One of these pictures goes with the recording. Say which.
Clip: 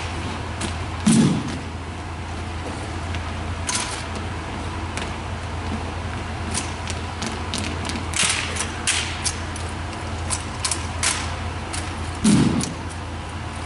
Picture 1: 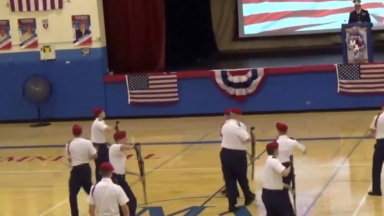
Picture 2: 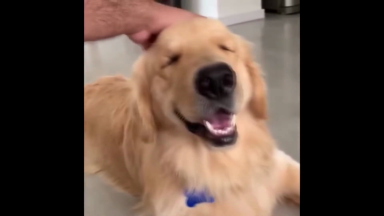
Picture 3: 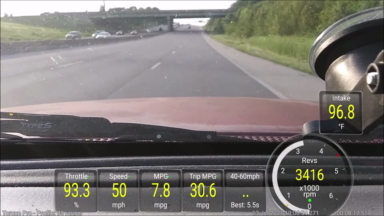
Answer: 1